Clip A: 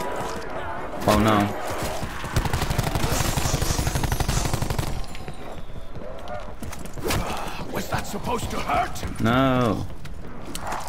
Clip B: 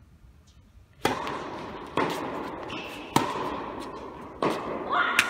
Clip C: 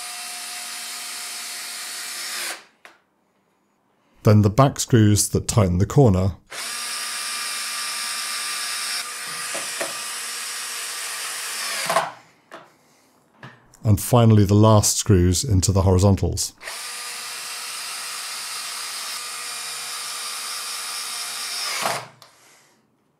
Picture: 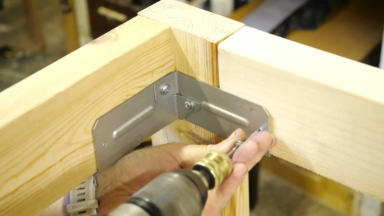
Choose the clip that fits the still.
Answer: C